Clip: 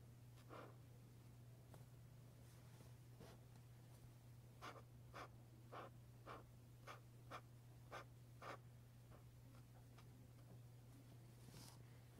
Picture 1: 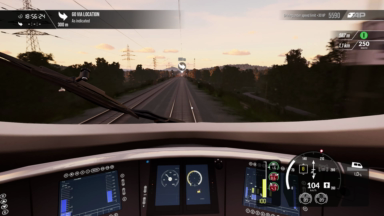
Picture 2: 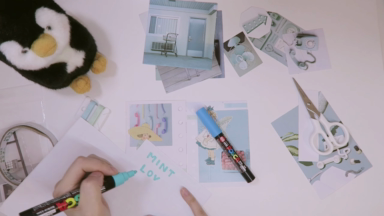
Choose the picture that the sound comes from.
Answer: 2